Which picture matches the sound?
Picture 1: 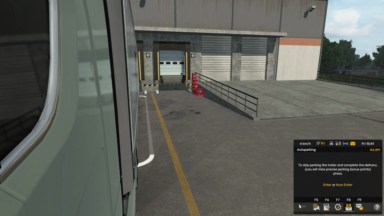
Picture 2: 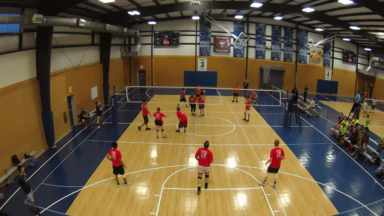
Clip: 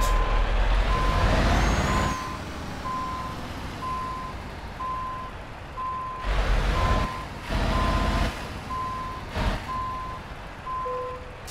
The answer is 1